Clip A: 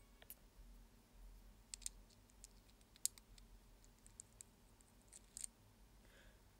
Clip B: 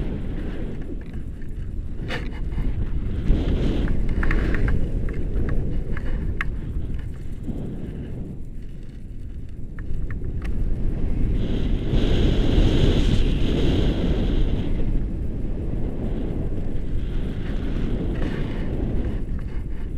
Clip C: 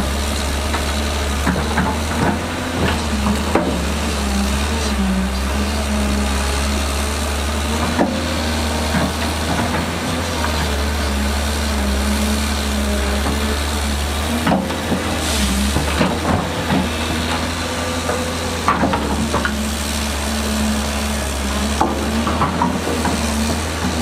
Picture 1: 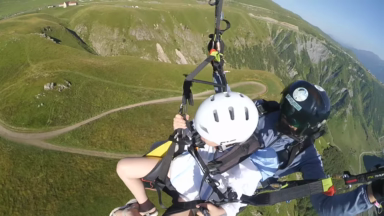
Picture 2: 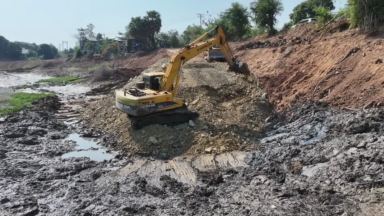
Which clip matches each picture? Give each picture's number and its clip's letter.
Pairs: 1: B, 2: C